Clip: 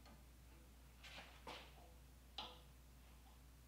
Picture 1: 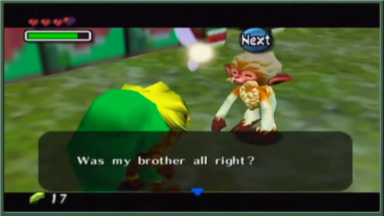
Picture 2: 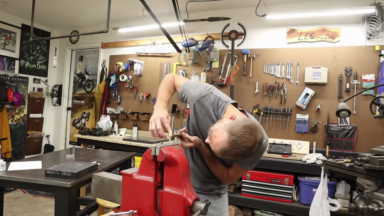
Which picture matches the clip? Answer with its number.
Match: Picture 2